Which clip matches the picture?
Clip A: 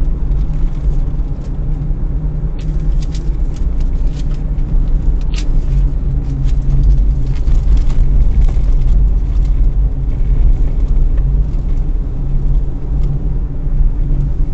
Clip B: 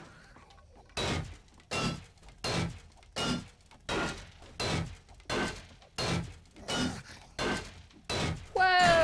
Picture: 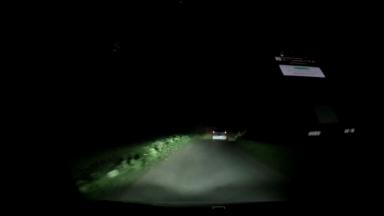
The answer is A